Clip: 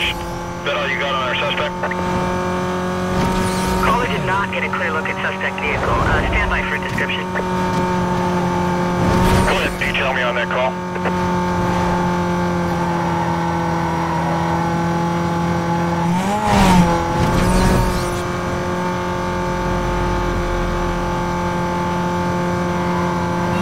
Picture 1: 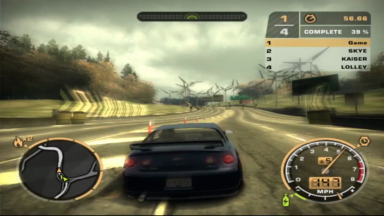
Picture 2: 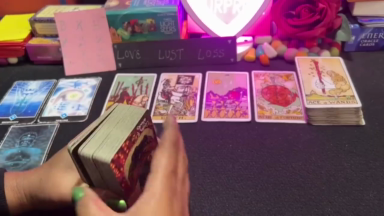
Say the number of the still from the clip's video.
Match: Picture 1